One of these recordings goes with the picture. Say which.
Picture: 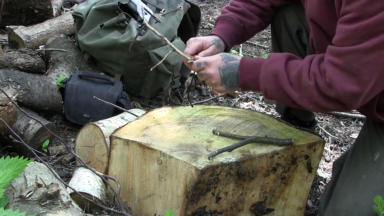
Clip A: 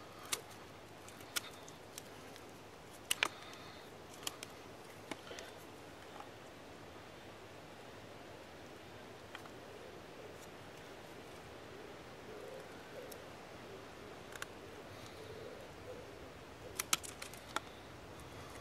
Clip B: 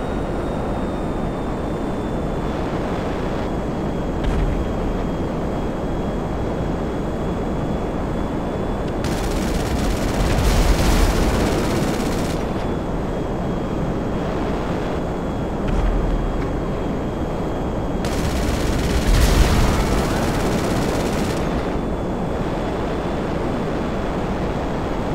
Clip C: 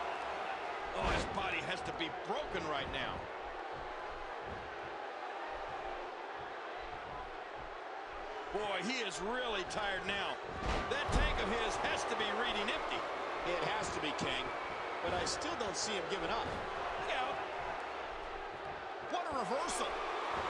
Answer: A